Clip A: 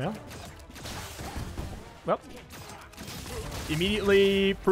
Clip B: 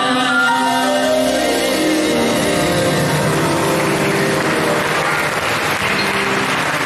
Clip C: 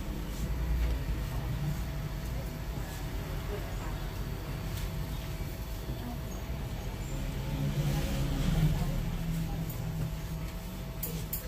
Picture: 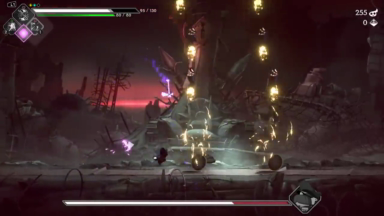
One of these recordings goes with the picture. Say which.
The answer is A